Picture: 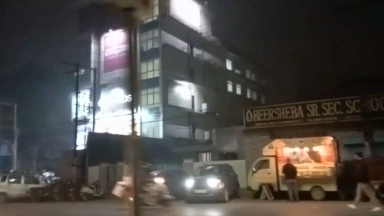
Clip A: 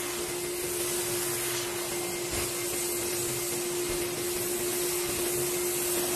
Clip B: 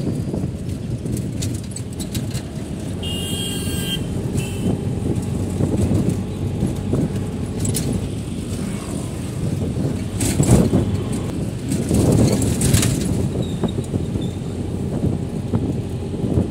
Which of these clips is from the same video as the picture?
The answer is B